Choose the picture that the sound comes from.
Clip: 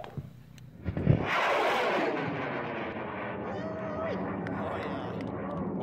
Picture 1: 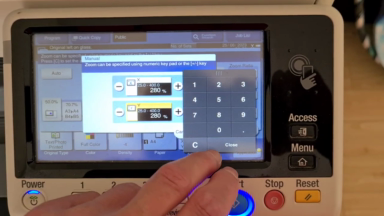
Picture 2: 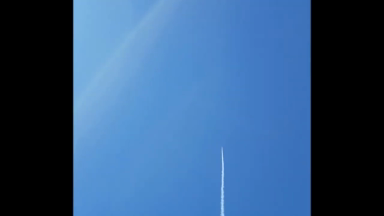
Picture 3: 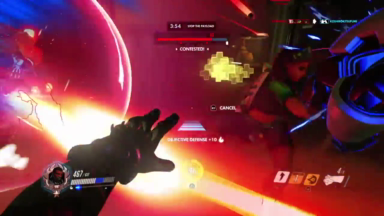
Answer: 2